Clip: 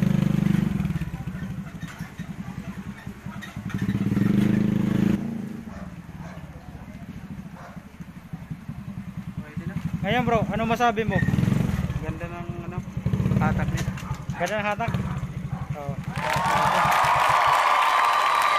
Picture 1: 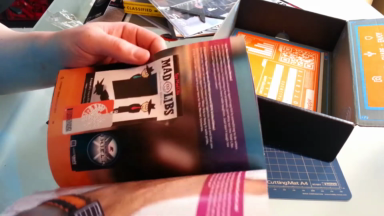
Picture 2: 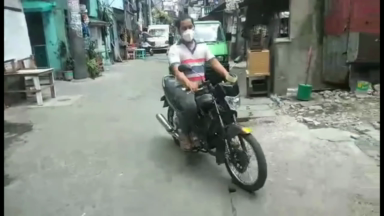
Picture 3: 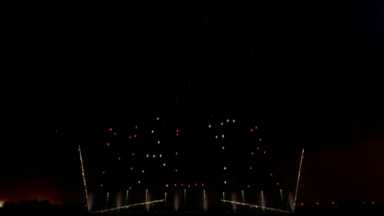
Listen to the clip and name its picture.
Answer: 2